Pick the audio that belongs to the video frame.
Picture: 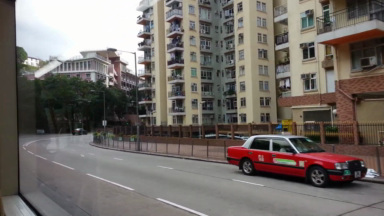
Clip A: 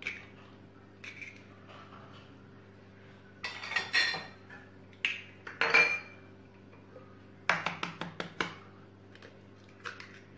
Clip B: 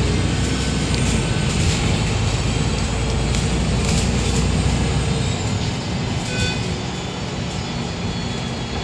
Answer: B